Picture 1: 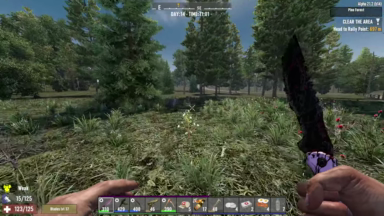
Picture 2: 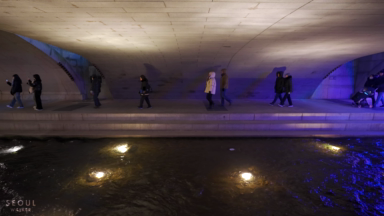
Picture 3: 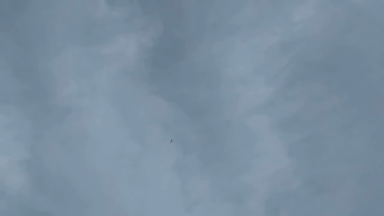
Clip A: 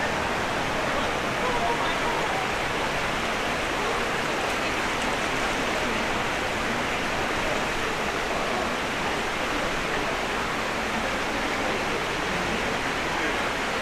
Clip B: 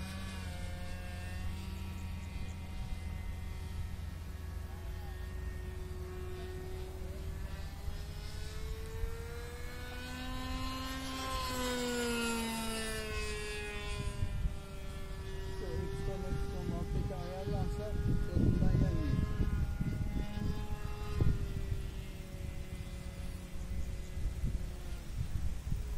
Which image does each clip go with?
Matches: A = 2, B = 3